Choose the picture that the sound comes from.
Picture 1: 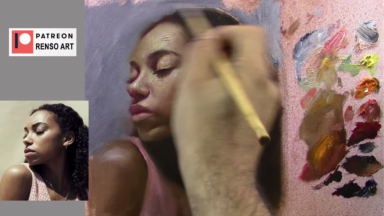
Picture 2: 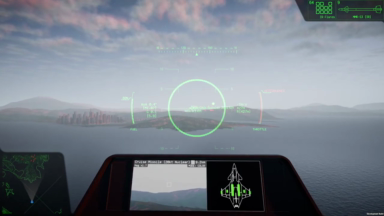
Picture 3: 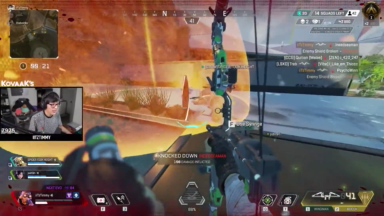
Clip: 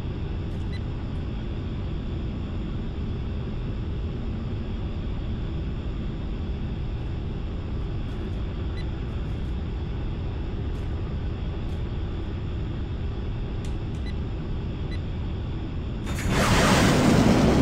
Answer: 2